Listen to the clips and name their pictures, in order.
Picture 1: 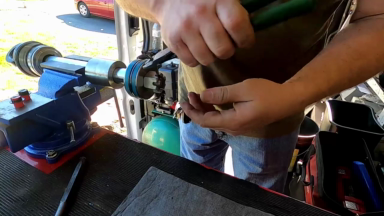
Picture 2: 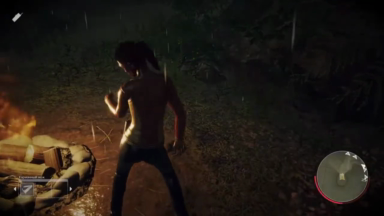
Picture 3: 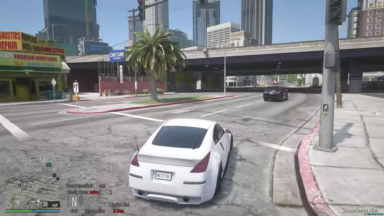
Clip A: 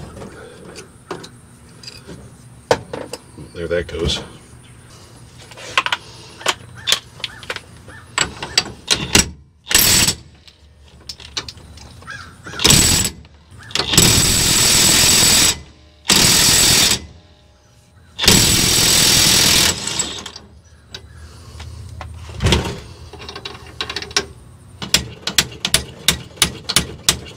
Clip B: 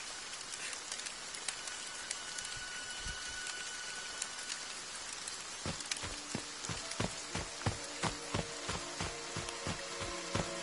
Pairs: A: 1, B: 2